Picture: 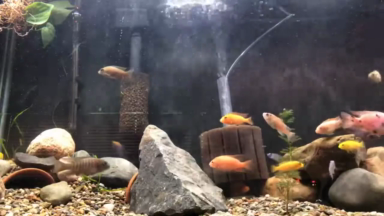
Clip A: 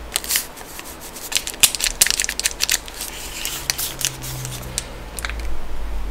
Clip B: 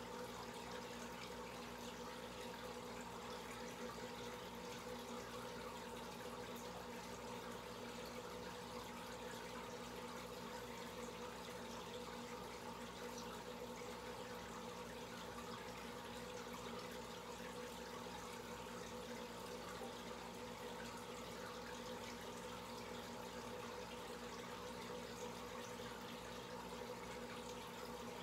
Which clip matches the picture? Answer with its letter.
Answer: B